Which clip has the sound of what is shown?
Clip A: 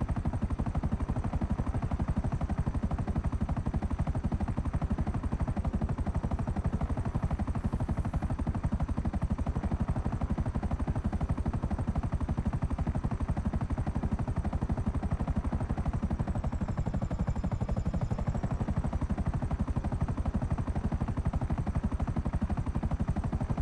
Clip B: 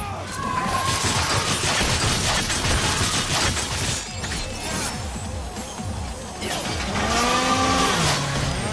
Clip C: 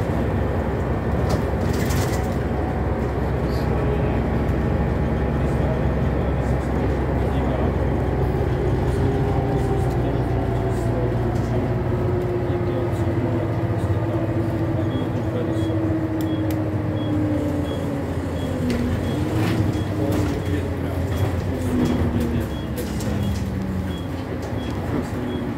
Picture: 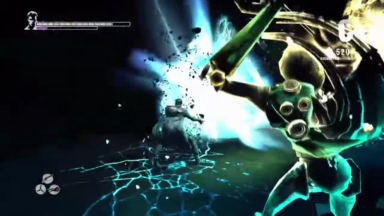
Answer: B